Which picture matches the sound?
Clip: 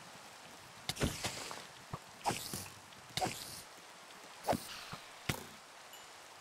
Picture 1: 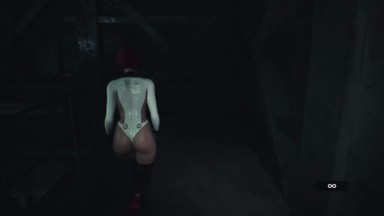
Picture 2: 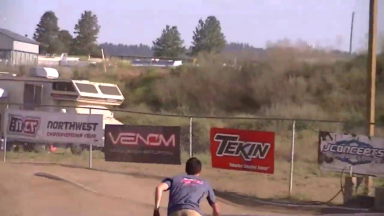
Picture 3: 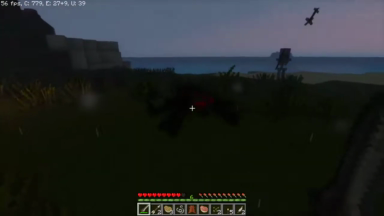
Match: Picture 3